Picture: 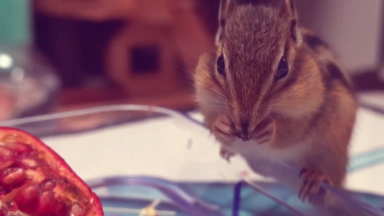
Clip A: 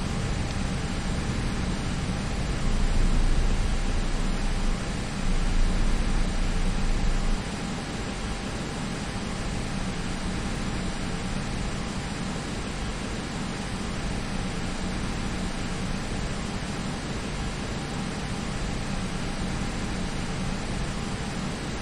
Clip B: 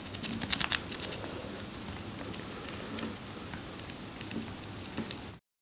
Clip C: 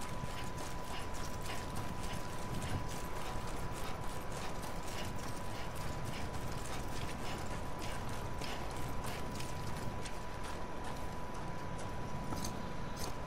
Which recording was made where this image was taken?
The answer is B